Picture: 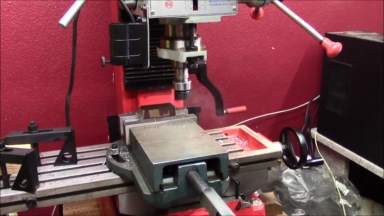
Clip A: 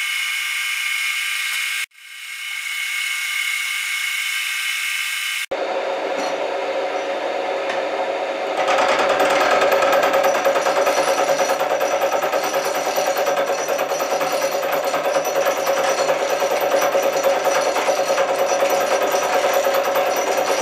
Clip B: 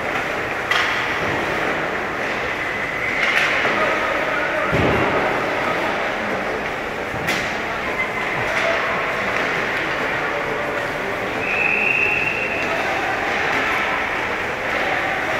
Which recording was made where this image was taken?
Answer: A